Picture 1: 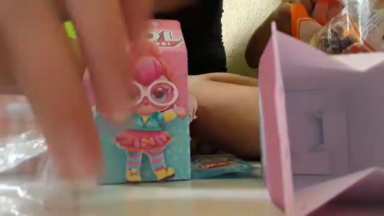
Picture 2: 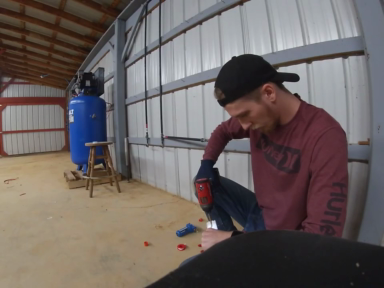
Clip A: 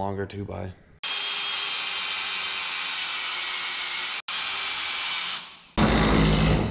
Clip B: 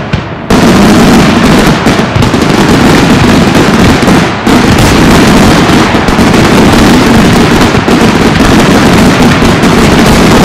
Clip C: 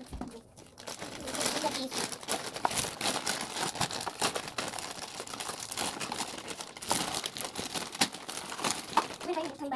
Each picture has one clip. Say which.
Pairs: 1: C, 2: A